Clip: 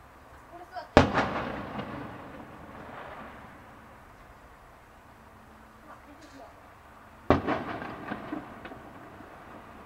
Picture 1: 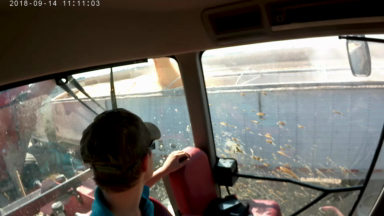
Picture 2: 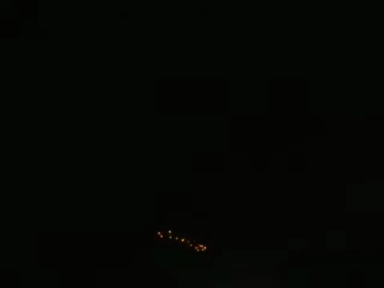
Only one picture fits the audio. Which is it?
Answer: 2